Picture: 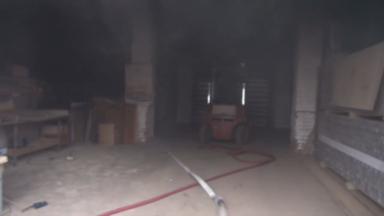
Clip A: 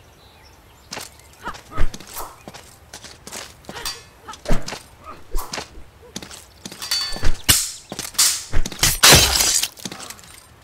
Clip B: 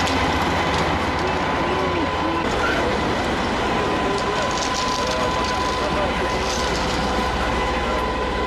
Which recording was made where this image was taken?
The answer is B